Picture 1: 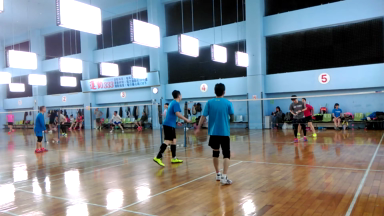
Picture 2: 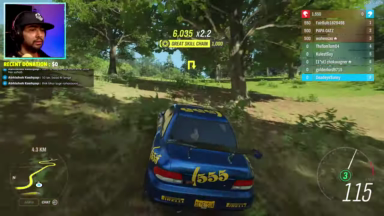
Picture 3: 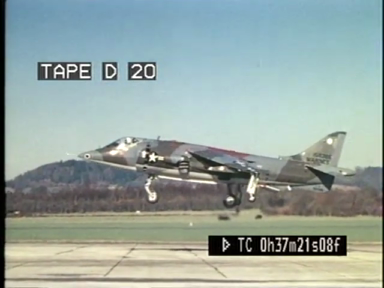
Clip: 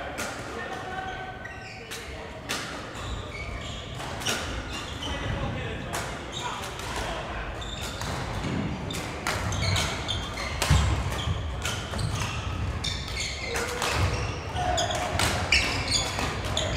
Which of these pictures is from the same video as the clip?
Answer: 1